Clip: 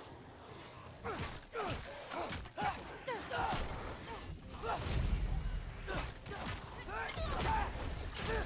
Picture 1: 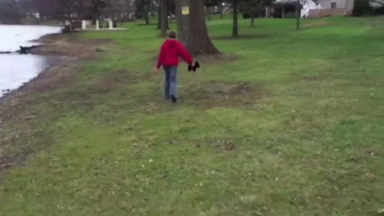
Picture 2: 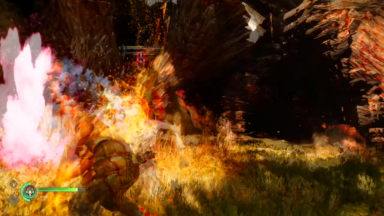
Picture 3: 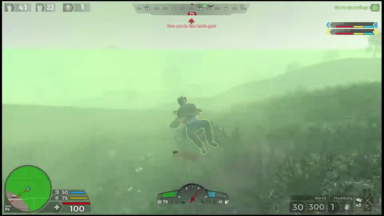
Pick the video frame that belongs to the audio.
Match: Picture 2